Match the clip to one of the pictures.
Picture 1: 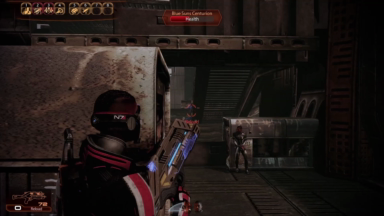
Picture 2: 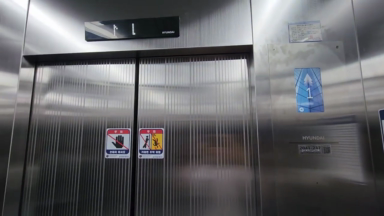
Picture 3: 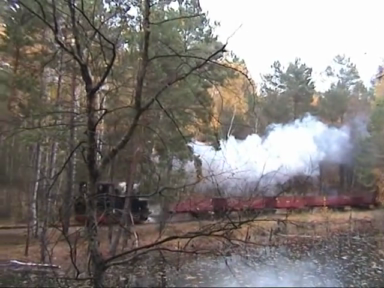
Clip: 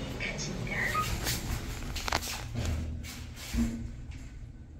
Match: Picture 2